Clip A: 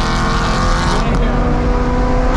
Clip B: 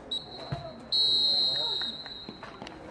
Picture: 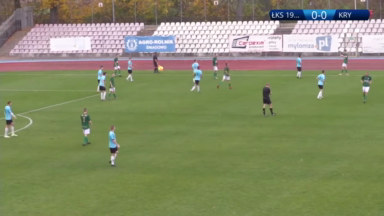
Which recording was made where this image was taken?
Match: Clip B